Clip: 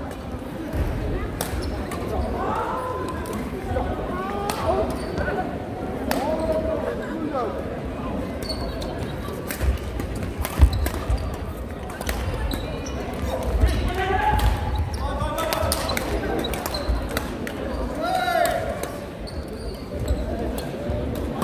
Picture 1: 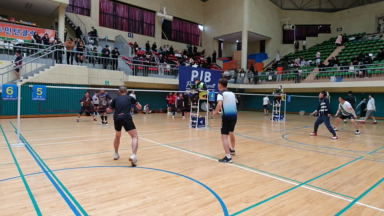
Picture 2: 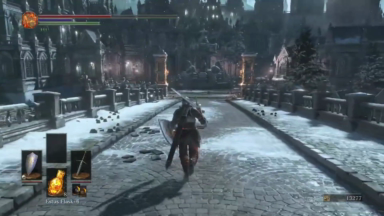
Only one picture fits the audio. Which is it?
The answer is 1